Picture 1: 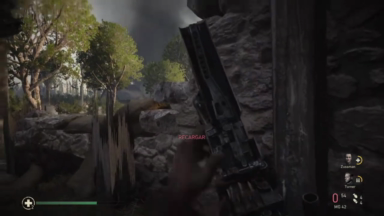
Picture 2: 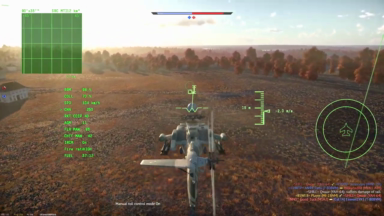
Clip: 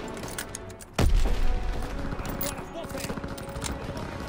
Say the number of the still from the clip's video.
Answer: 1